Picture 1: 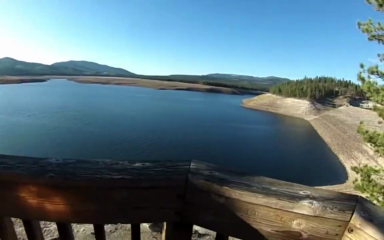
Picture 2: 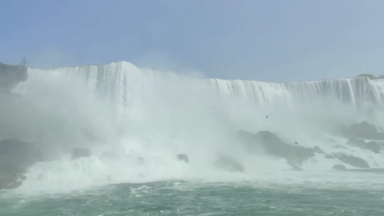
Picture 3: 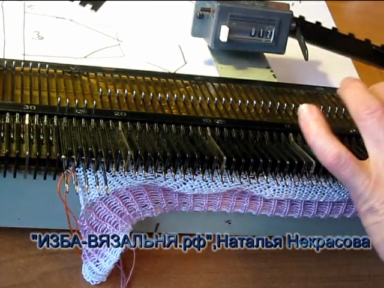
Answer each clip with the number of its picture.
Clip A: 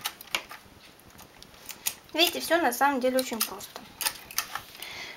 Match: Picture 3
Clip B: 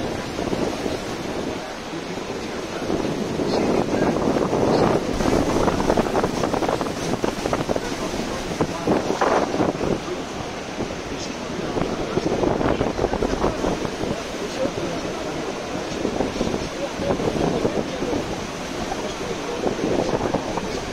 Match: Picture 2